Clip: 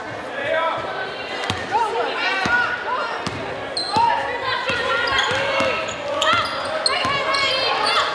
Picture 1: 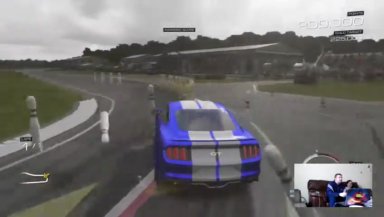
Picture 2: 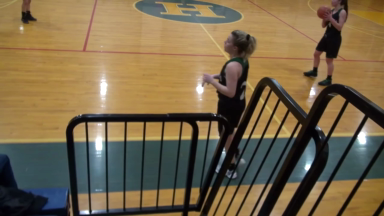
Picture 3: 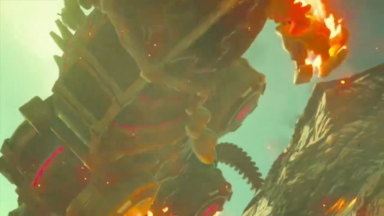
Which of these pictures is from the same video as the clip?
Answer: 2